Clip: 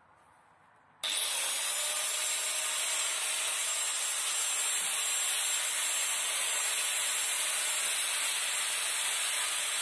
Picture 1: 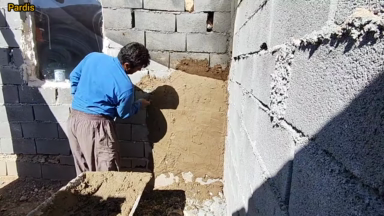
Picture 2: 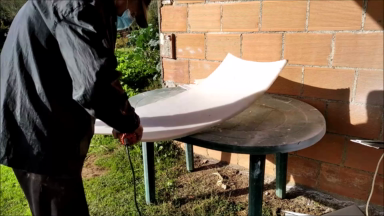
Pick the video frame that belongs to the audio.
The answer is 2